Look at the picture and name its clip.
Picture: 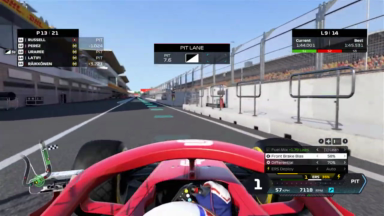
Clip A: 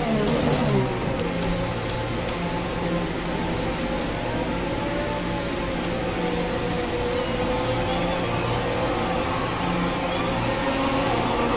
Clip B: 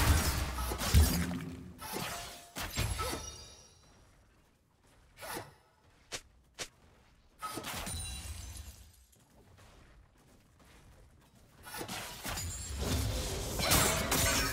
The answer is A